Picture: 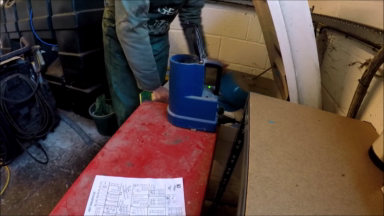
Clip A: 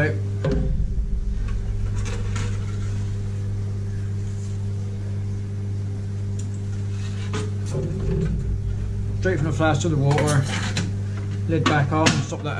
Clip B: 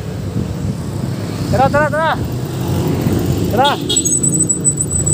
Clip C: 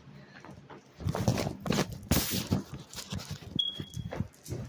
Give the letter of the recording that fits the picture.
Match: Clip A